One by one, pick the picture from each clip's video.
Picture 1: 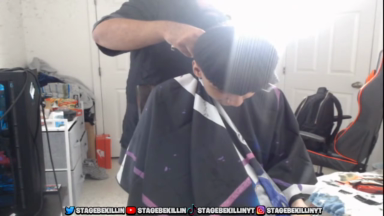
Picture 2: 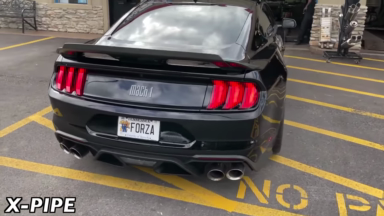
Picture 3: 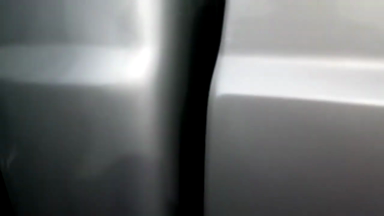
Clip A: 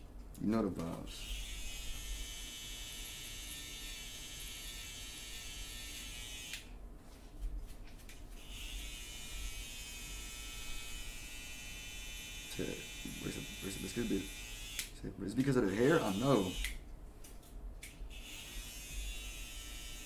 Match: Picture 1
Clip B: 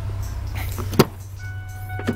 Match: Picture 3